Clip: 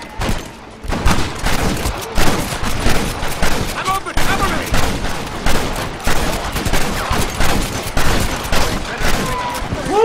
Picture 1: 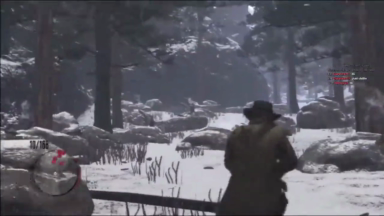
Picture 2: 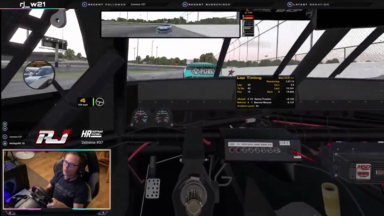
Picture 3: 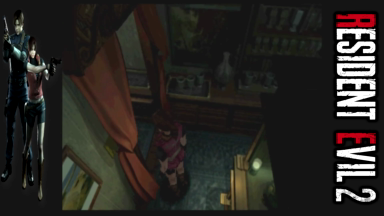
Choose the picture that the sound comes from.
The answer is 1